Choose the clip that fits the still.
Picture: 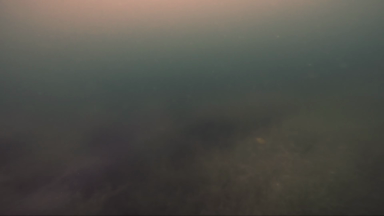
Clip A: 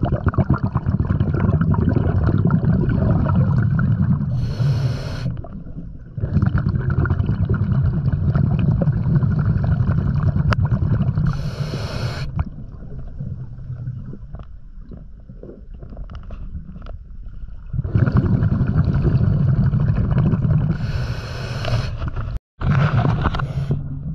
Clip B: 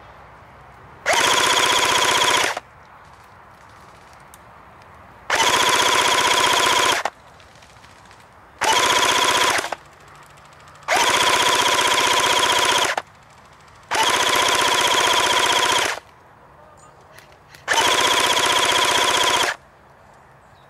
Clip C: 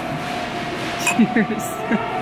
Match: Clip A